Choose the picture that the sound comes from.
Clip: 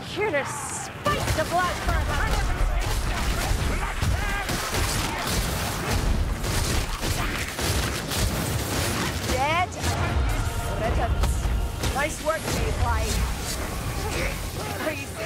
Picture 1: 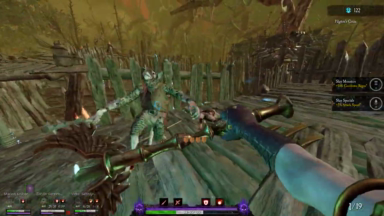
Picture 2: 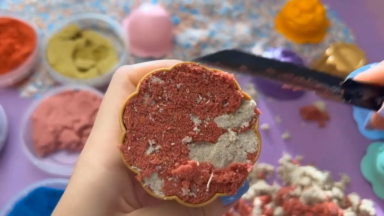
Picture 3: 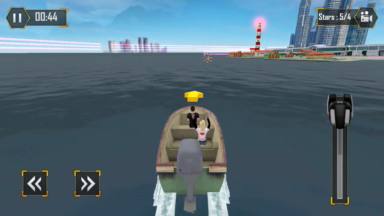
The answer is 1